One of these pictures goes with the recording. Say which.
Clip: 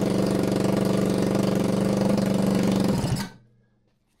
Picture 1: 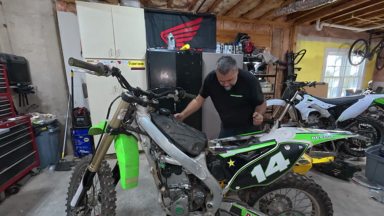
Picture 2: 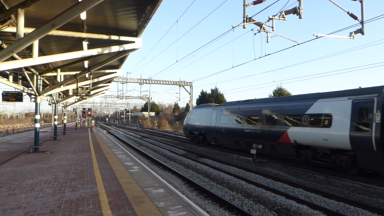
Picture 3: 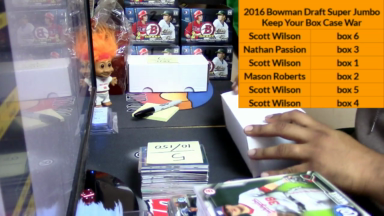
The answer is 1